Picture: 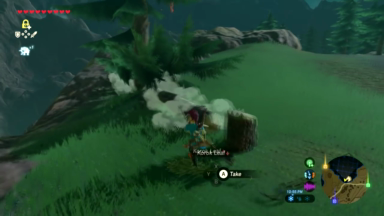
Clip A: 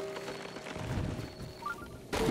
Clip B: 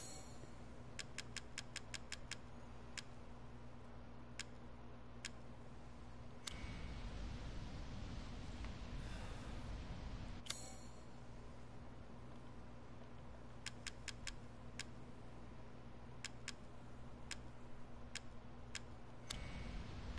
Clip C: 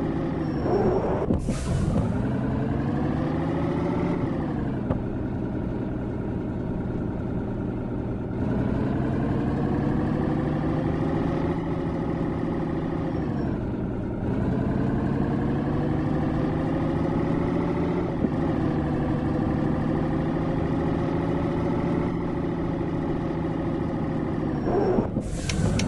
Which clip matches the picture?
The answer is A